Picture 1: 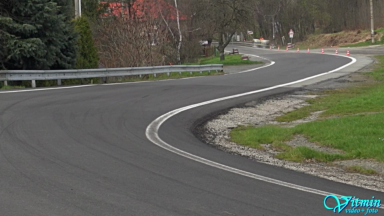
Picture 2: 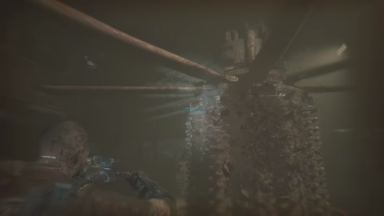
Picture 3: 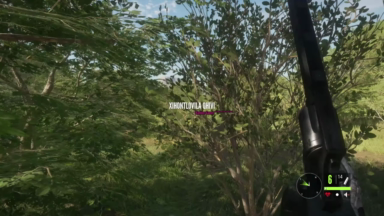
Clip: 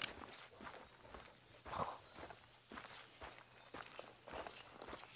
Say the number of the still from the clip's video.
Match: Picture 3